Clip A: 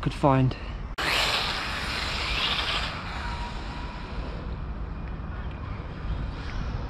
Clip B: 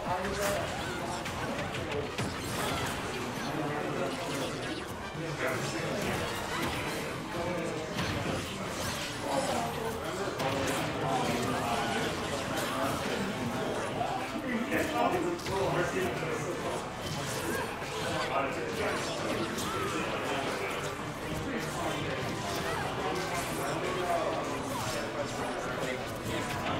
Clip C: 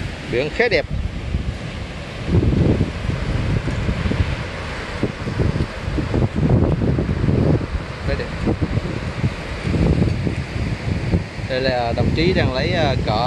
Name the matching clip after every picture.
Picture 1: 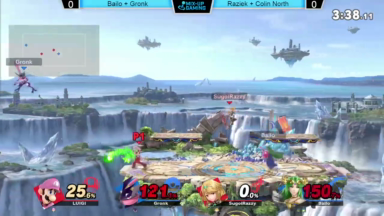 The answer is B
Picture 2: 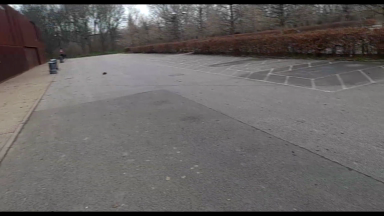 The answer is A